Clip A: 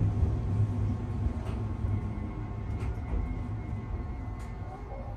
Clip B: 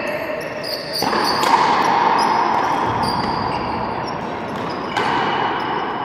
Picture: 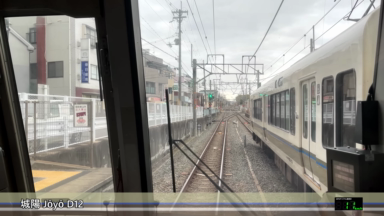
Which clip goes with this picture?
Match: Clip A